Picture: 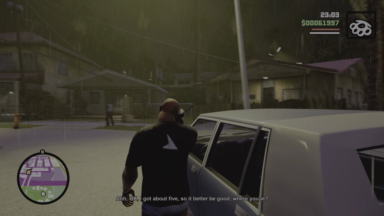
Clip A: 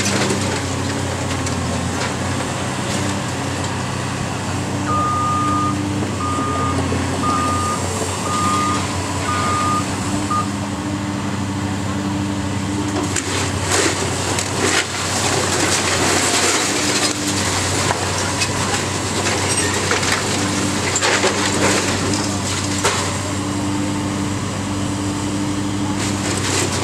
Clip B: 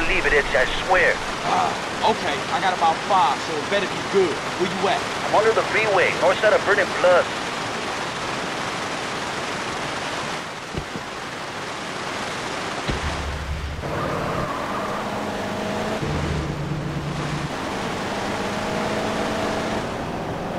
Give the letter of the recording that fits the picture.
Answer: B